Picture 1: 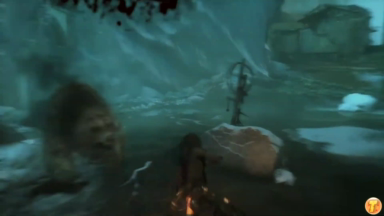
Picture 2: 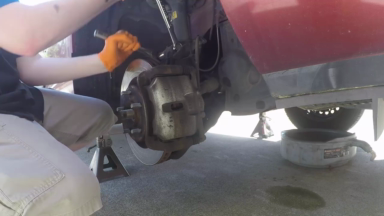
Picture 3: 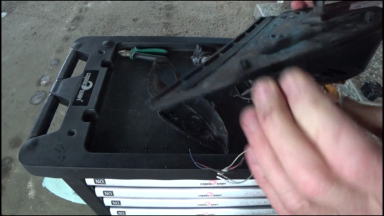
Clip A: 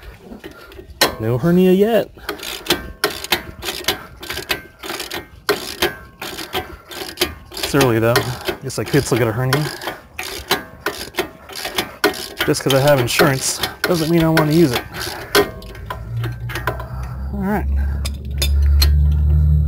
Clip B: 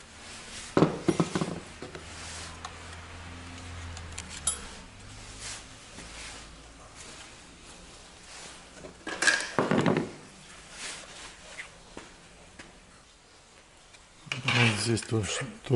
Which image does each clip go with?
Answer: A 2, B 3